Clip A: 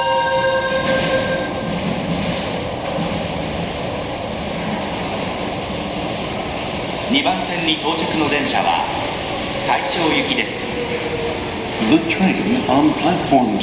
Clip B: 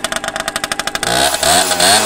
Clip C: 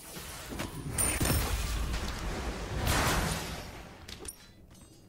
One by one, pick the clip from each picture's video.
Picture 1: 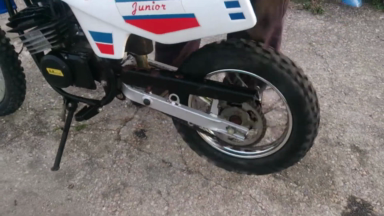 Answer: B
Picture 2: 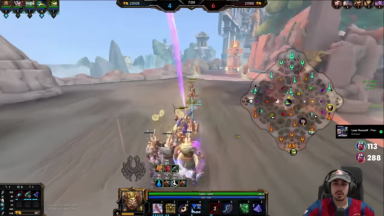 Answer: C